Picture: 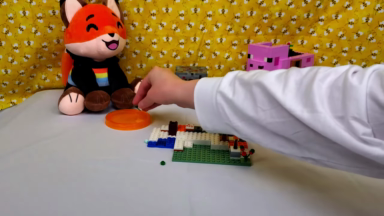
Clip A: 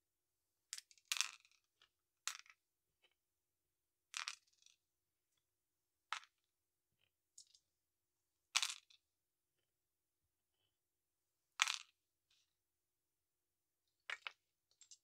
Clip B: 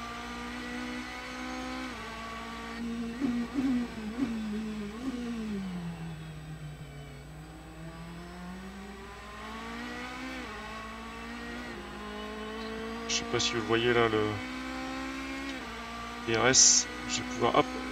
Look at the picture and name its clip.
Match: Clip A